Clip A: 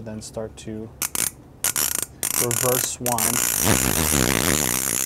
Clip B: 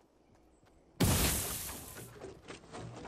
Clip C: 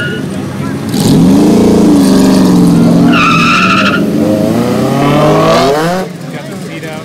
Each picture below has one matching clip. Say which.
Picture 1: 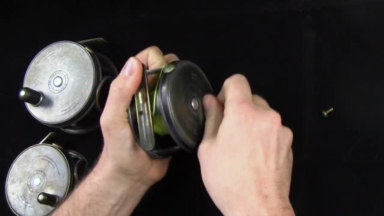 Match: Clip A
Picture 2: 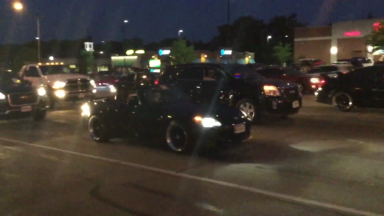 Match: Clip C